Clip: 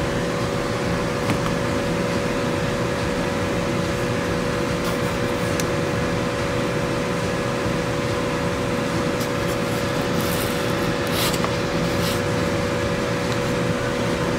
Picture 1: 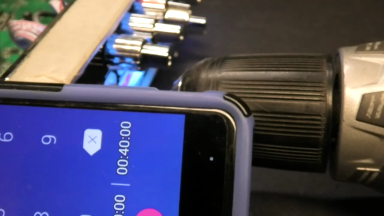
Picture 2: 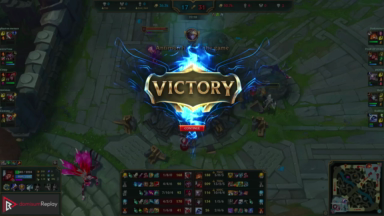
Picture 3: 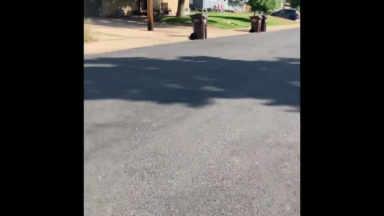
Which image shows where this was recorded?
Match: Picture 1